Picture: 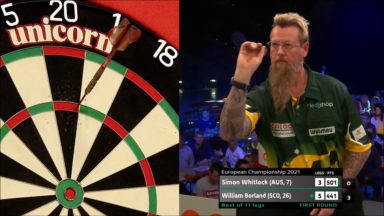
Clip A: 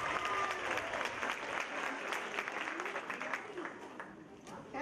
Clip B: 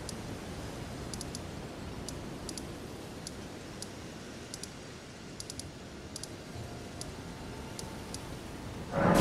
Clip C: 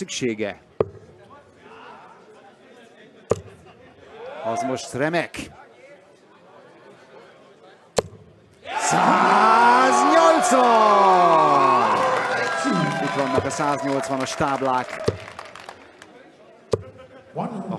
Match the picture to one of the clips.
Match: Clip C